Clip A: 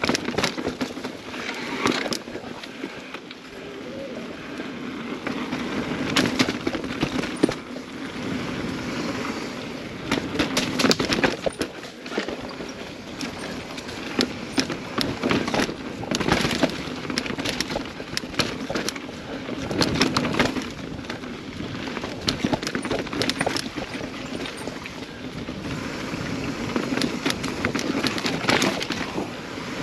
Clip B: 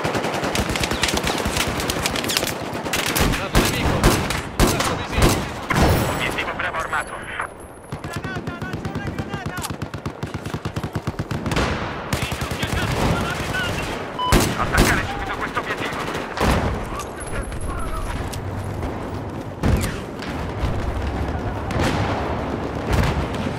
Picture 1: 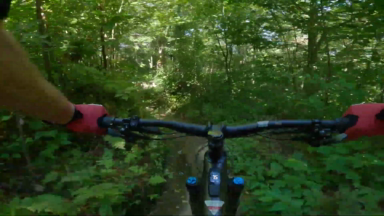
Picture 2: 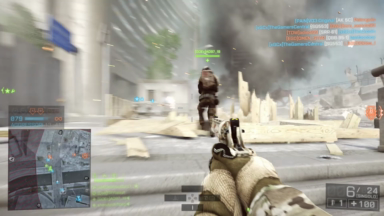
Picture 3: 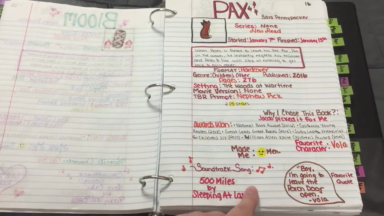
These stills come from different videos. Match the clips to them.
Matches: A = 1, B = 2